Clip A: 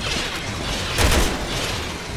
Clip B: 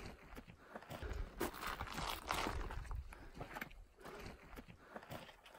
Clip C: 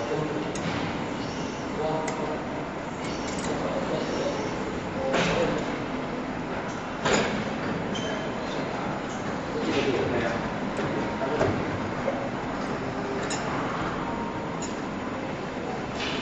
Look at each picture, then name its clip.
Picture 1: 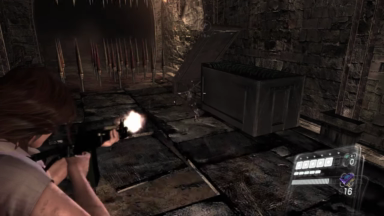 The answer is A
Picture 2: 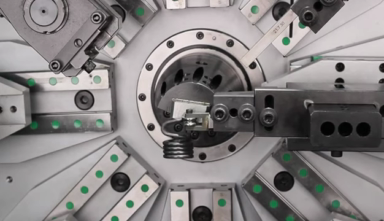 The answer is C